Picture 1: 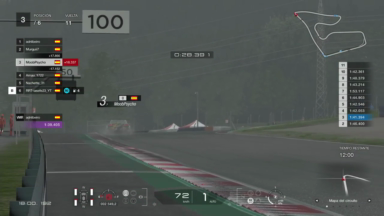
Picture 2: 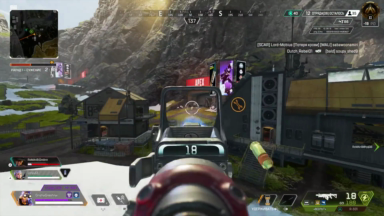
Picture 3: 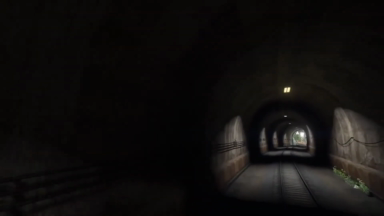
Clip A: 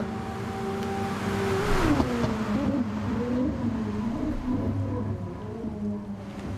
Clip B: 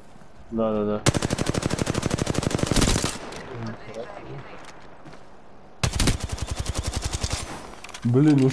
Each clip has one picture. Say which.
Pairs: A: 1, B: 2